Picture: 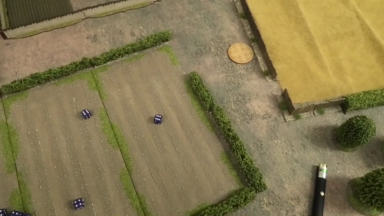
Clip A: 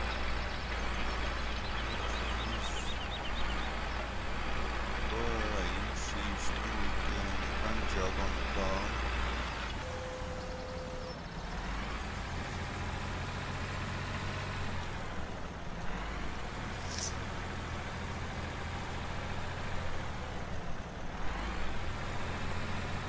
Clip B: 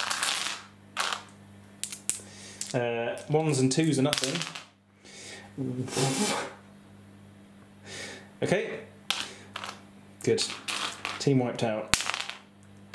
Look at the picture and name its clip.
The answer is B